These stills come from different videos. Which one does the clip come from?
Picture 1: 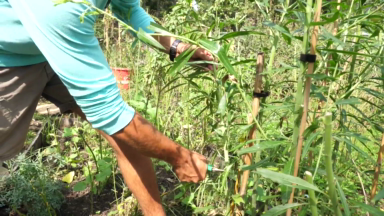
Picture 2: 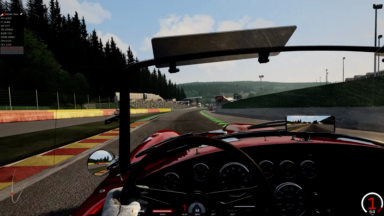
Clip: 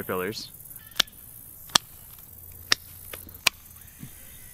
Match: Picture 1